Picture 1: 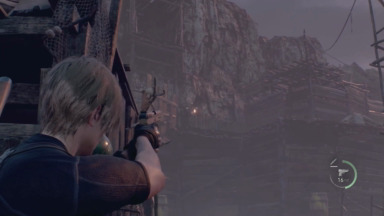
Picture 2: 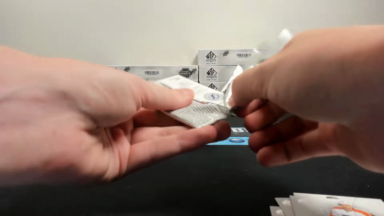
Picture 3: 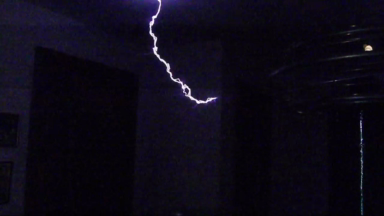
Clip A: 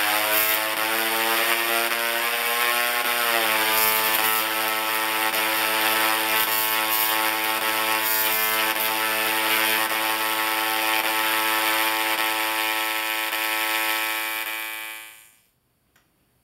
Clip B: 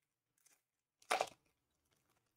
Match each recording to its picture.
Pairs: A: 3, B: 2